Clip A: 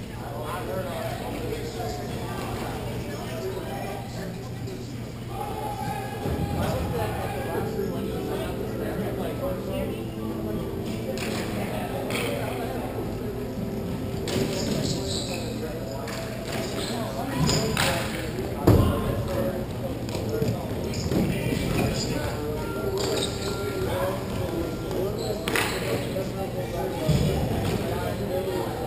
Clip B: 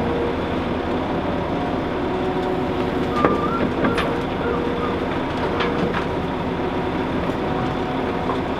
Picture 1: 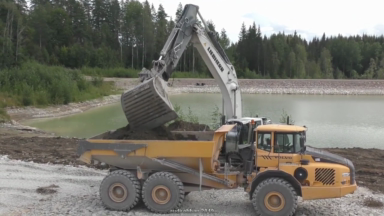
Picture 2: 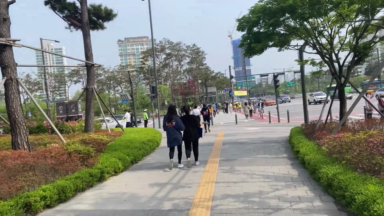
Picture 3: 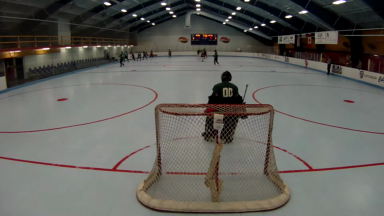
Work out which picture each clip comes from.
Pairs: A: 3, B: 1